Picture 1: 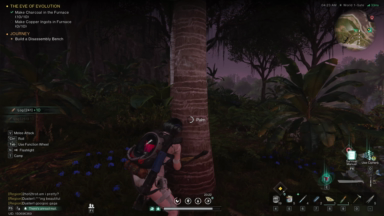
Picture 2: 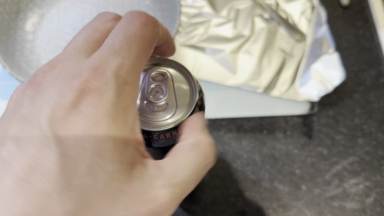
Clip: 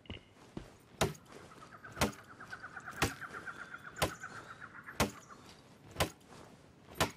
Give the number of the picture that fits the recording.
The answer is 1